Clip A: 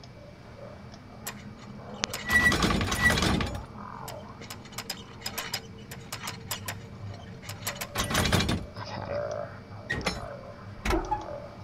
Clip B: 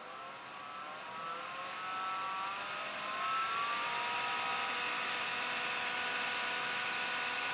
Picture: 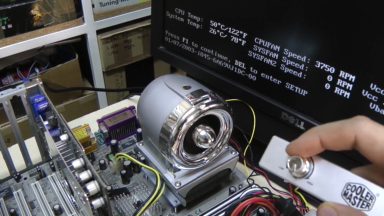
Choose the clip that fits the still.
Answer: B